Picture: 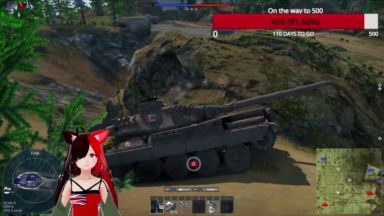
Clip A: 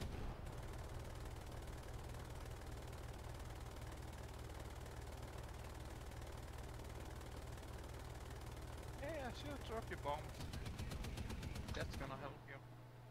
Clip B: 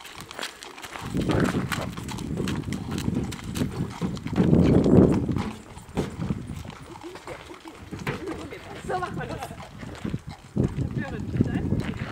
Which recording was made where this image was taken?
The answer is A